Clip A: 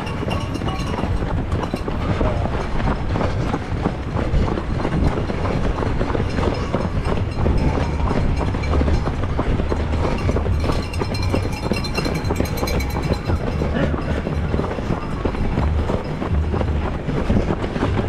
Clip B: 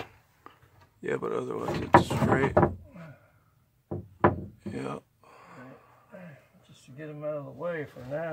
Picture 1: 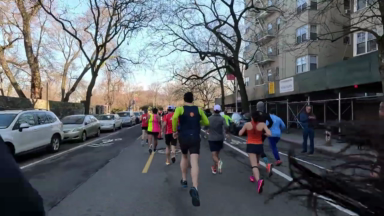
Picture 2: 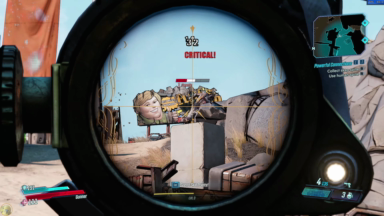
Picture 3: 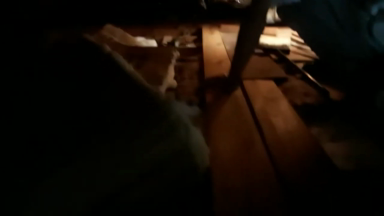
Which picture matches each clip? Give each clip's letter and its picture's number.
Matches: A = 1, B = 3